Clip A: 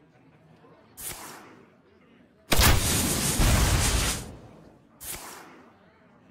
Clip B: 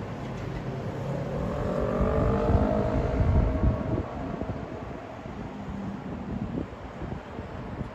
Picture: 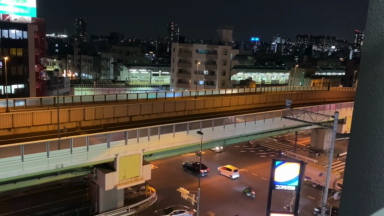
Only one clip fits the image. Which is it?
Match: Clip B